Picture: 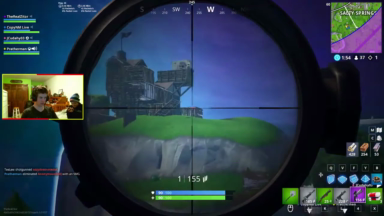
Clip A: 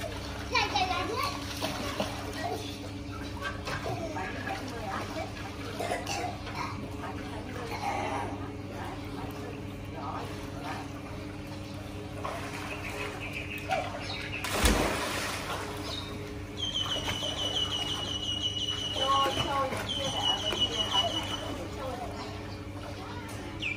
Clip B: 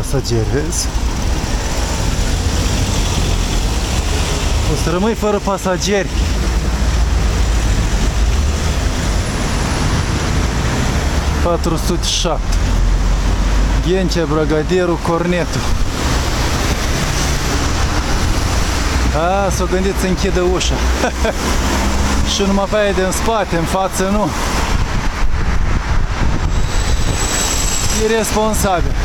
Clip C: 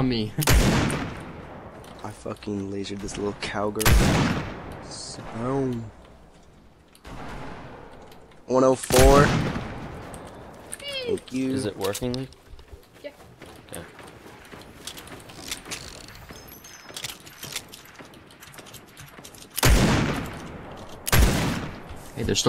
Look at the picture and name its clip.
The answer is C